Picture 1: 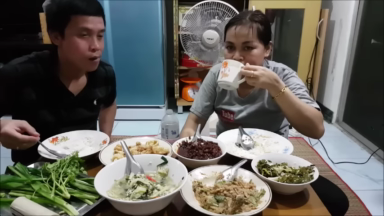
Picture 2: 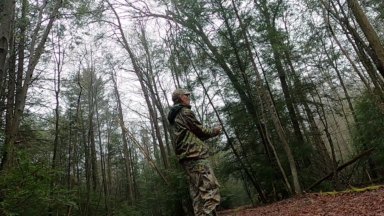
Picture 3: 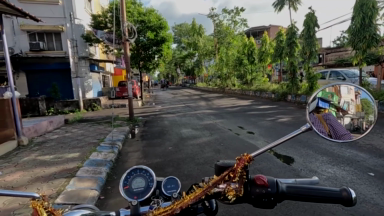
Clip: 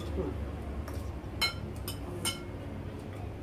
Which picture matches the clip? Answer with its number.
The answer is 1